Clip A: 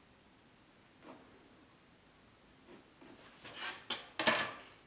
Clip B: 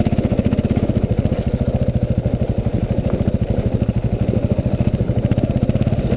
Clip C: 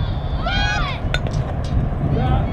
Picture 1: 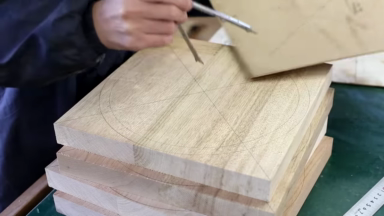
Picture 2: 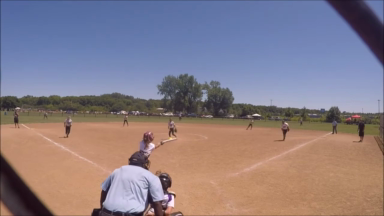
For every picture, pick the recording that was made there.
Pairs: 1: A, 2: C